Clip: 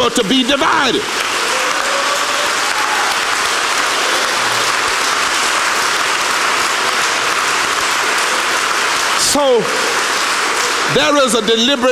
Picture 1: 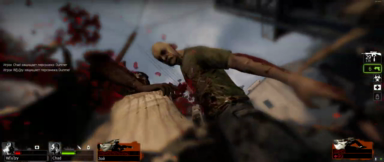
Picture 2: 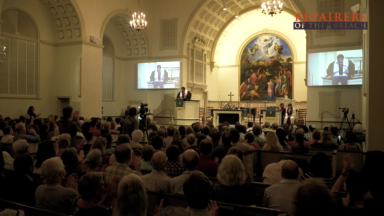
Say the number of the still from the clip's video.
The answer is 2